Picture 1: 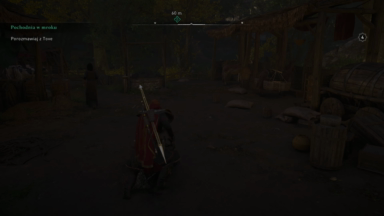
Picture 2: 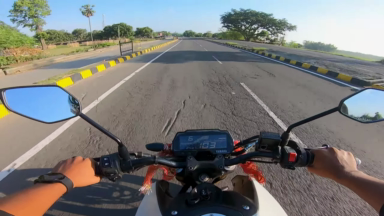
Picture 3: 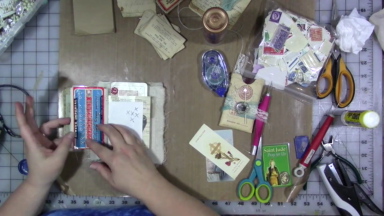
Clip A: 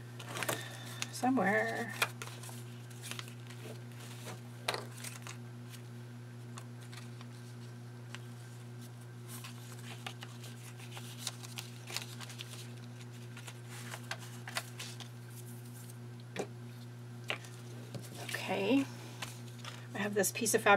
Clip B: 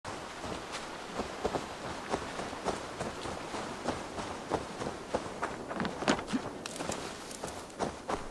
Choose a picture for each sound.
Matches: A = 3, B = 1